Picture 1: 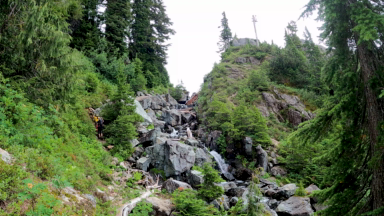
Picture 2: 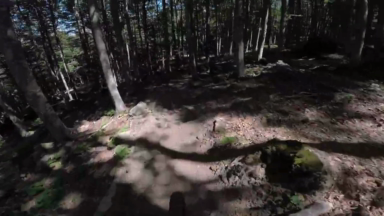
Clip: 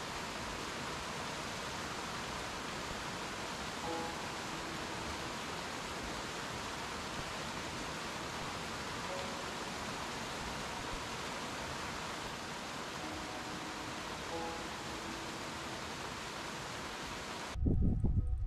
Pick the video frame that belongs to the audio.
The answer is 1